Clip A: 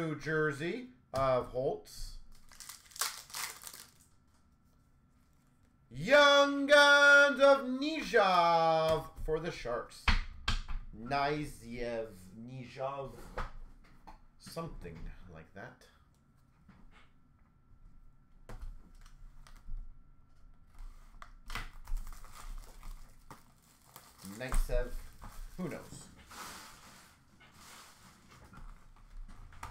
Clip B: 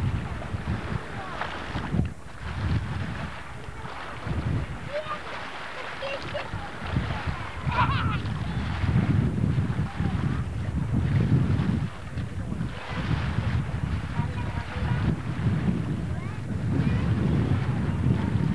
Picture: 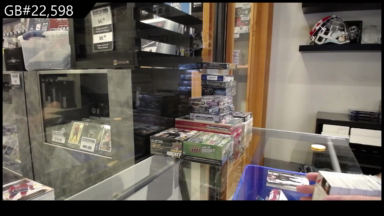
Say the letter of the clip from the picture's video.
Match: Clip A